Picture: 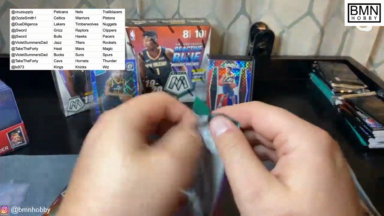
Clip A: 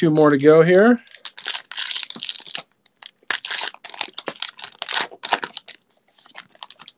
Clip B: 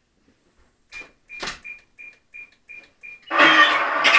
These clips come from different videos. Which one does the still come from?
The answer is A